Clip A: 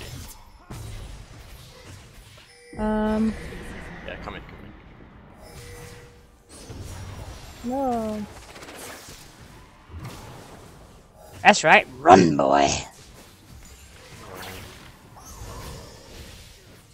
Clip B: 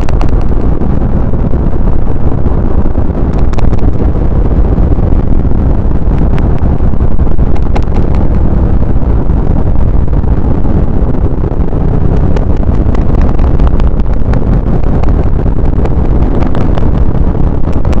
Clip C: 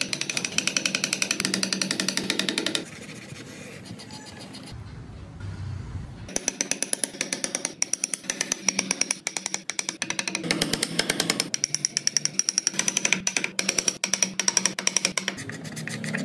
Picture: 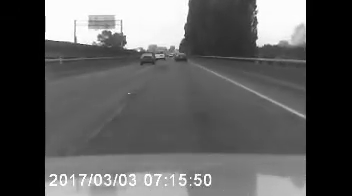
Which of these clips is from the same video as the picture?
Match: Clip B